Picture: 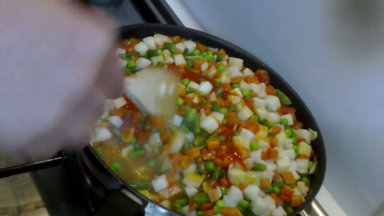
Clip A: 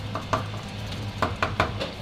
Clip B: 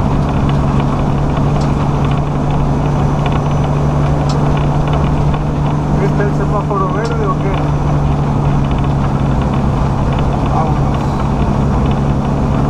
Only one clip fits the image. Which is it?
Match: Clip A